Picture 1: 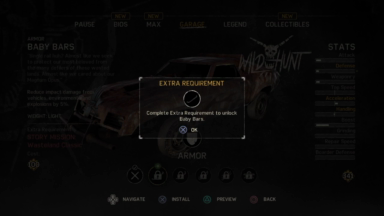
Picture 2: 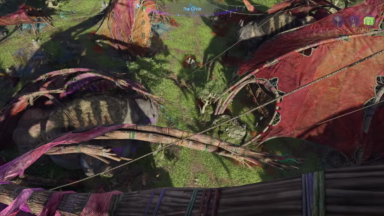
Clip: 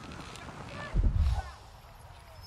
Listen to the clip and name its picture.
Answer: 2